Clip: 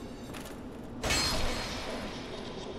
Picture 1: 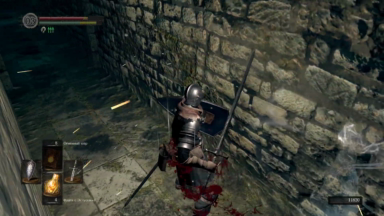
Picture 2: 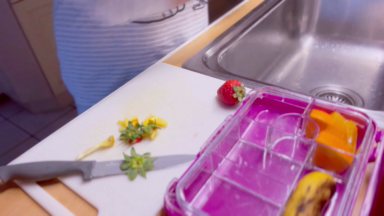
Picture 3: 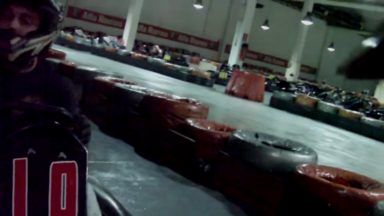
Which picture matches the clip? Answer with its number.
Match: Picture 1